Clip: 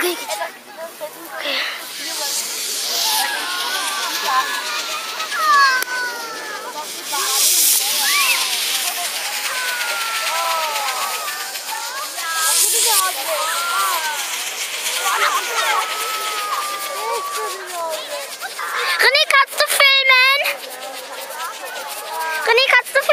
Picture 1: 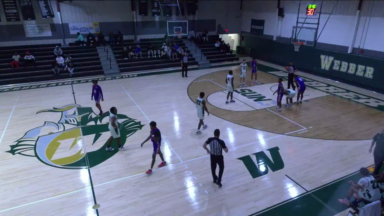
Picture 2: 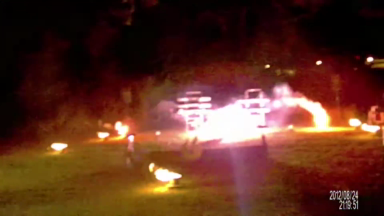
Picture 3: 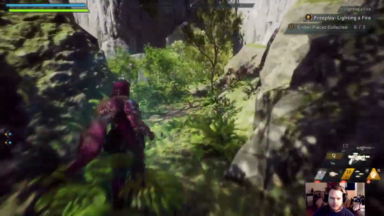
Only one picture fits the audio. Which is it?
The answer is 2